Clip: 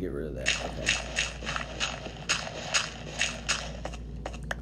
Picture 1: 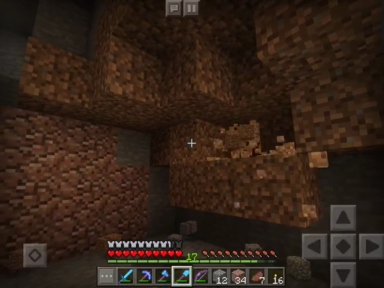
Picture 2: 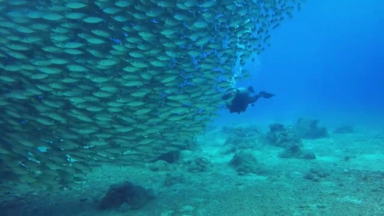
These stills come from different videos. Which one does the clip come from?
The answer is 1